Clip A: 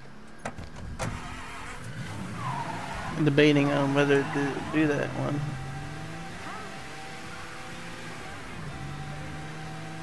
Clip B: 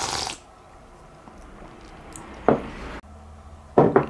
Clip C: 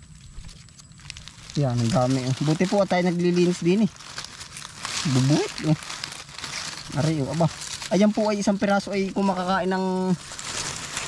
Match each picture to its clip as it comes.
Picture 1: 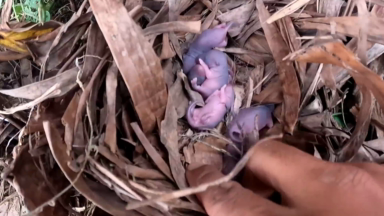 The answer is C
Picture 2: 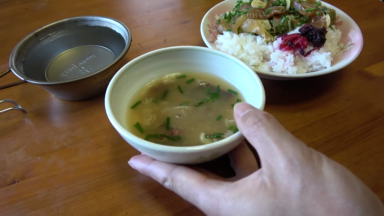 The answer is B